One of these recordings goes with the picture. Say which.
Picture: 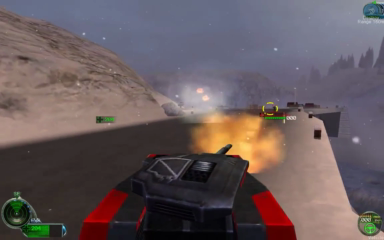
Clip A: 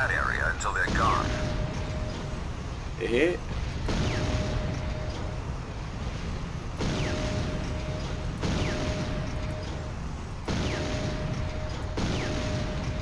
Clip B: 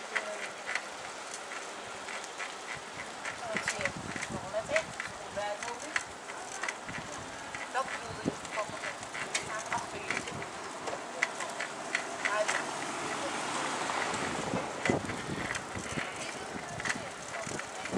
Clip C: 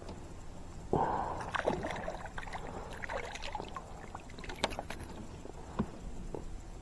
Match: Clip A